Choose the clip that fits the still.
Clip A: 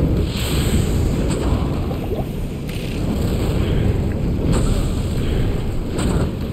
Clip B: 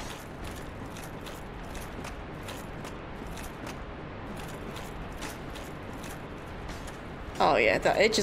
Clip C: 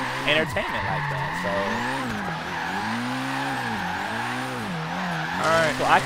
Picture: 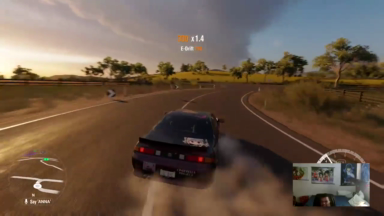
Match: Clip C